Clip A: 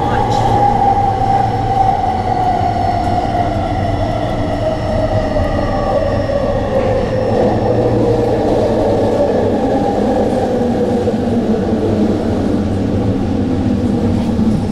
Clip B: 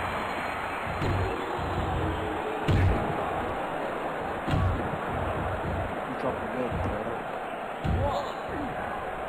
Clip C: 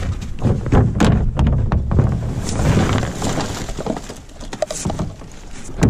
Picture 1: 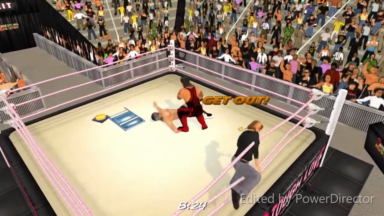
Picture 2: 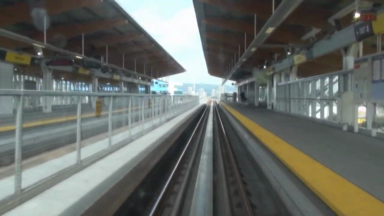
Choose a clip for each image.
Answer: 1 B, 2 A